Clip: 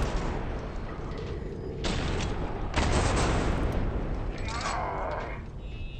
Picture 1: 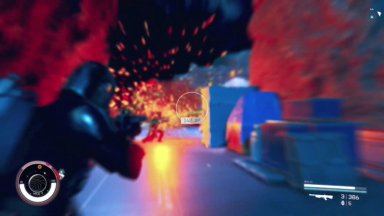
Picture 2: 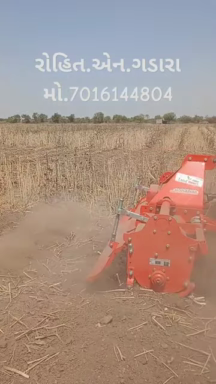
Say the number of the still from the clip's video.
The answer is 1